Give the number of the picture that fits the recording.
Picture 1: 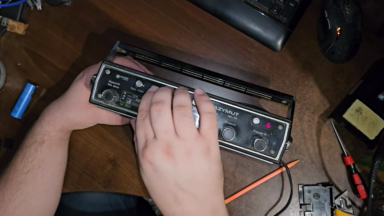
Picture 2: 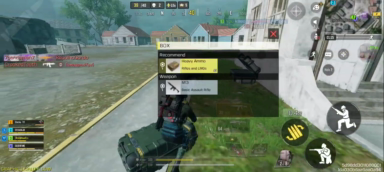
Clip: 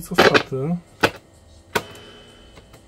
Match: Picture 1